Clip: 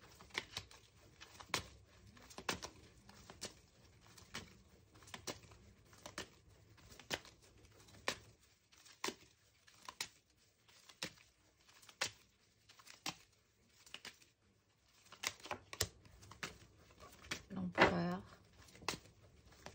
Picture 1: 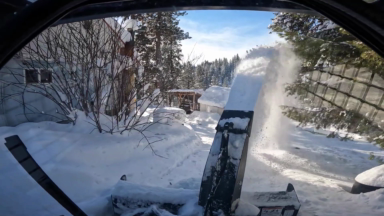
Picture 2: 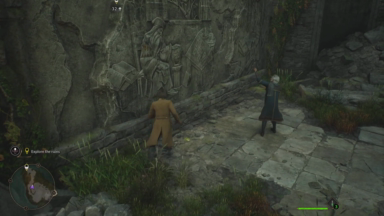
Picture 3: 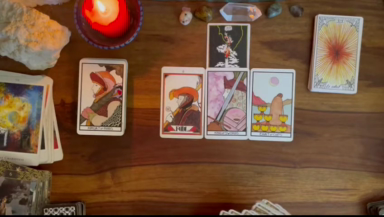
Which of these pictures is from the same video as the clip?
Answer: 3